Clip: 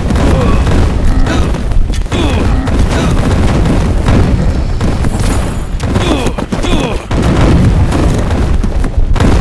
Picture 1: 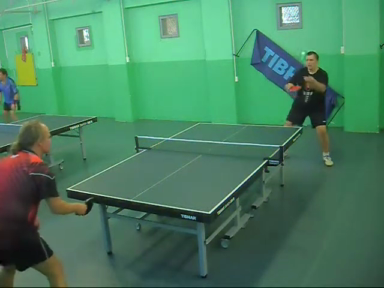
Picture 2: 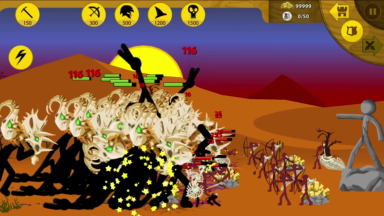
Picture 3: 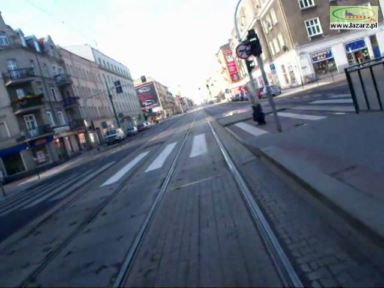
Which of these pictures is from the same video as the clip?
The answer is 2